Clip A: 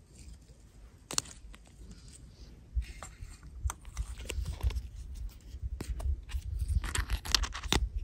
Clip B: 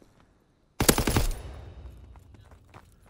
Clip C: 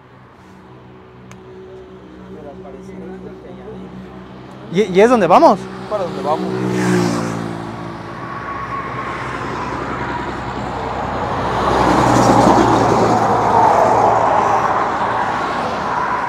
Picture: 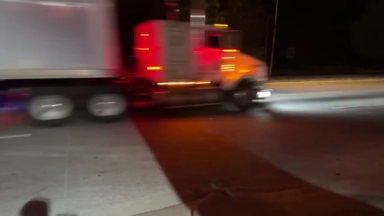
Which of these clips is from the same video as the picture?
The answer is C